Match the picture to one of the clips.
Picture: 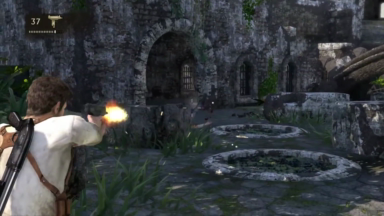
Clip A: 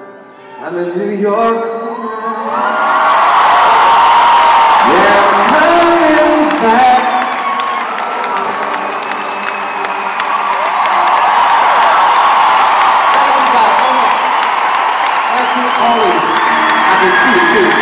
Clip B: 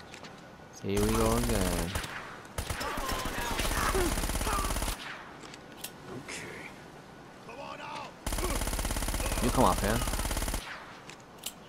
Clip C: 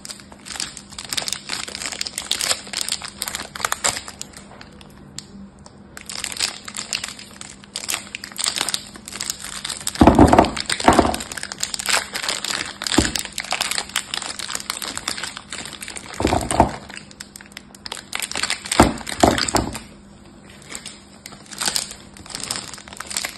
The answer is B